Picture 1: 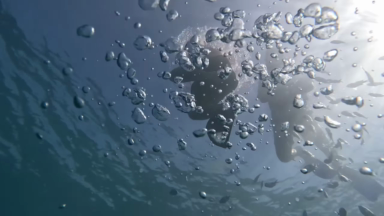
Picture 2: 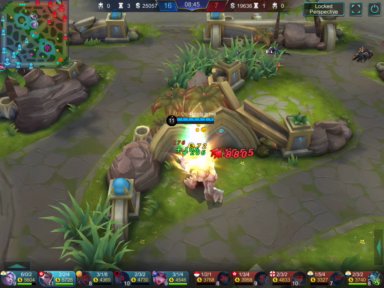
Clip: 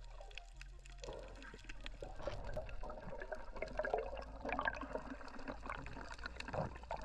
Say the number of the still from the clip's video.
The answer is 1